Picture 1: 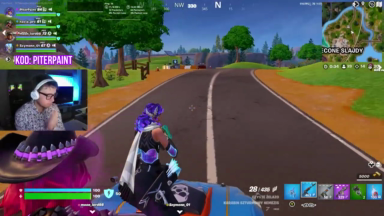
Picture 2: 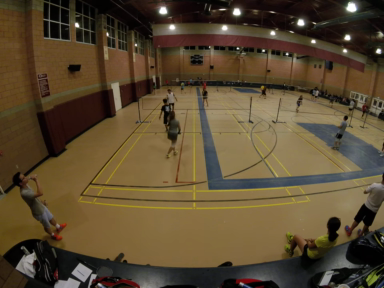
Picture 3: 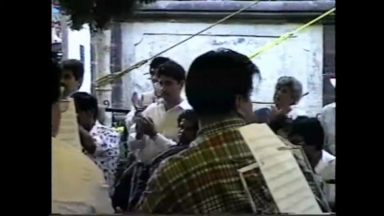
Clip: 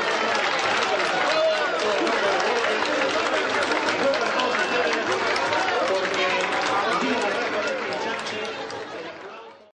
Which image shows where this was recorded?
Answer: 3